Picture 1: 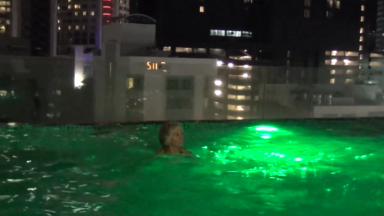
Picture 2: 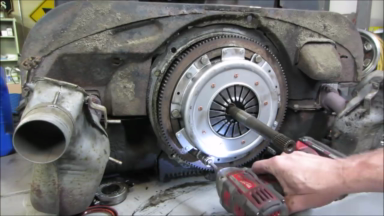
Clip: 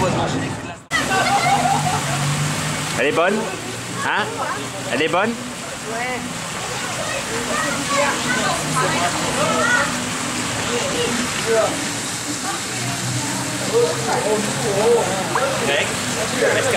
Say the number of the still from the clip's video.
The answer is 1